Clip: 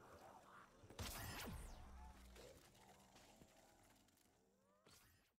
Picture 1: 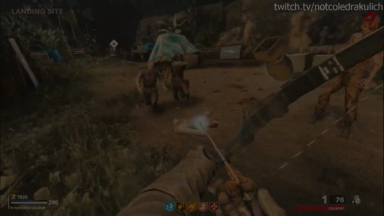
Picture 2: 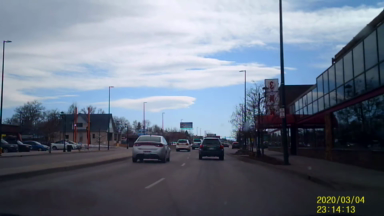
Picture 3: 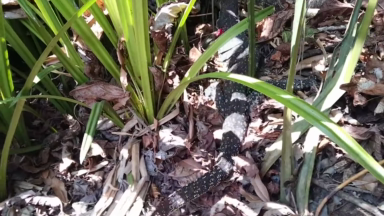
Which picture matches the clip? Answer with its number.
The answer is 1